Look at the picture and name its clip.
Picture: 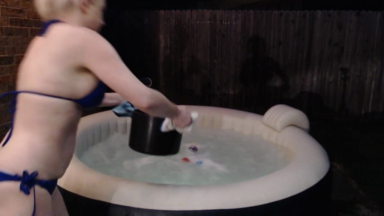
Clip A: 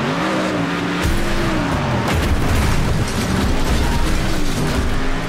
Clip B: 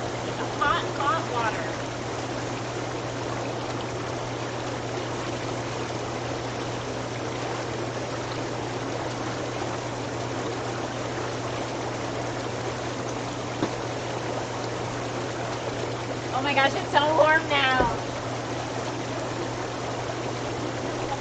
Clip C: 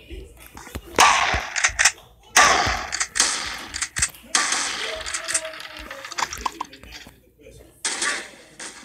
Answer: B